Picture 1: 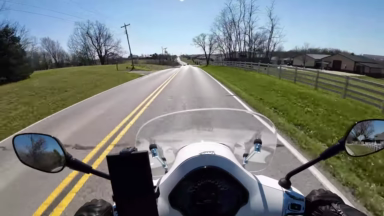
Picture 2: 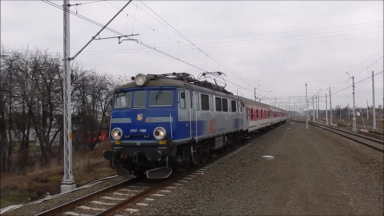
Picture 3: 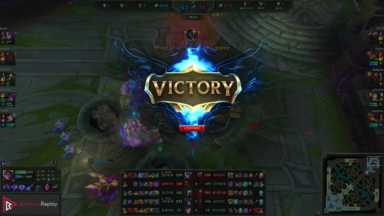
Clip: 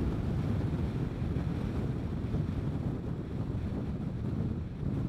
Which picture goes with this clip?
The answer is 1